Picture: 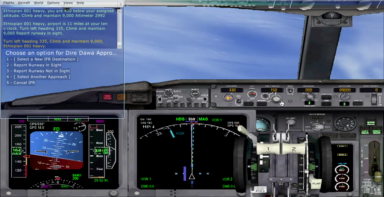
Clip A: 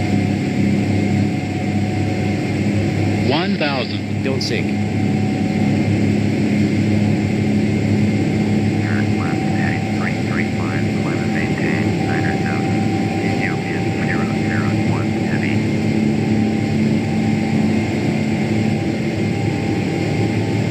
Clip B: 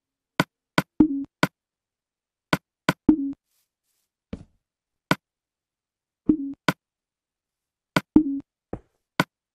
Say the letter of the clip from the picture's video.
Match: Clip A